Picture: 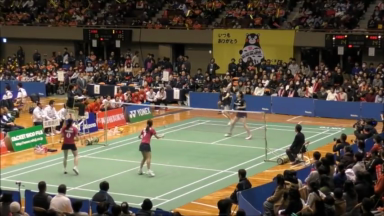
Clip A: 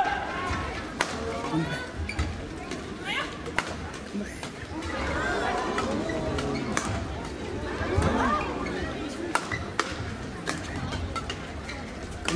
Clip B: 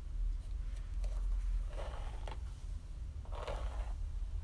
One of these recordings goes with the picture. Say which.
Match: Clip A